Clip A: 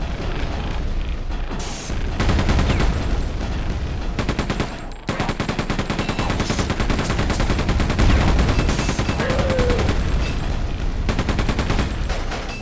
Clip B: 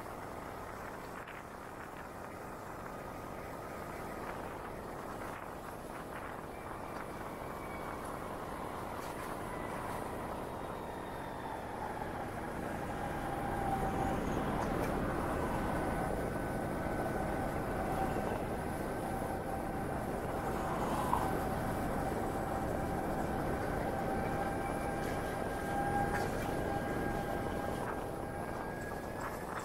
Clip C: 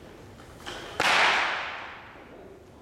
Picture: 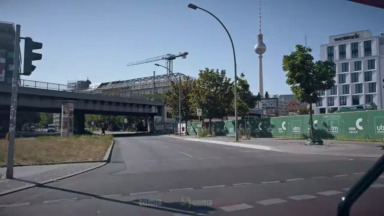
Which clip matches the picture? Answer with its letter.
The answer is B